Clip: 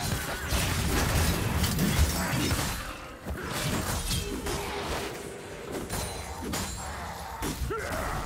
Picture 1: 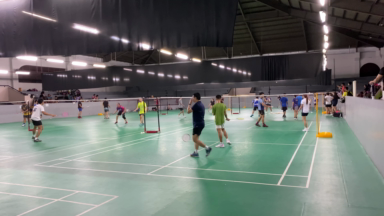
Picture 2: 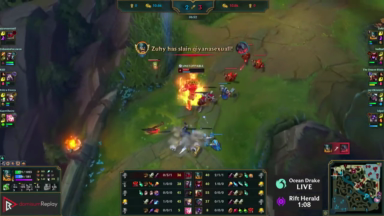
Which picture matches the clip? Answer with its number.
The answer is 2